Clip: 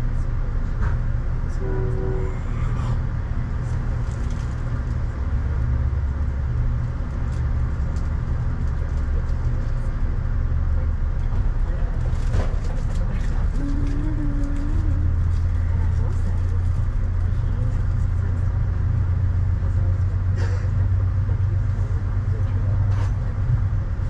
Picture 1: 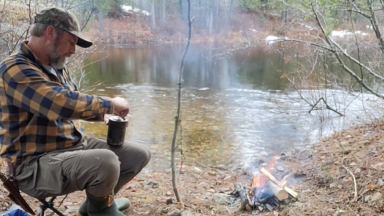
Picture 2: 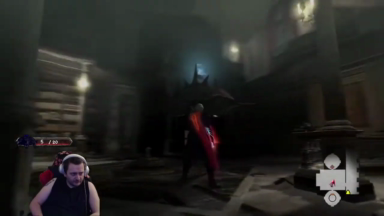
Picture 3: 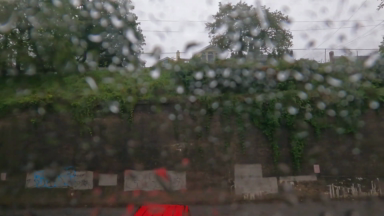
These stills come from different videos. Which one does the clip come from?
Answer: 3